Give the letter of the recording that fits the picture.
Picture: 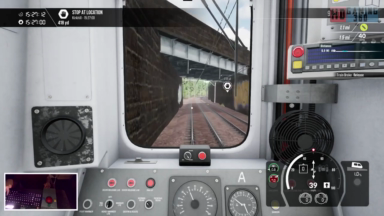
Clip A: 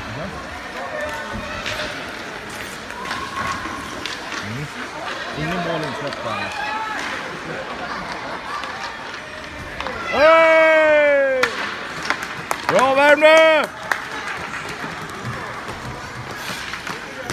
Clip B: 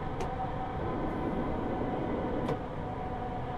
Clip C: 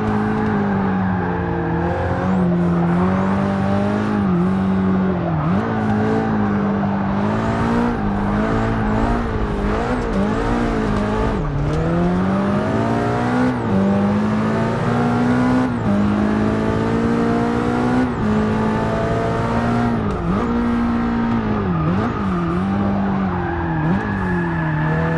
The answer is B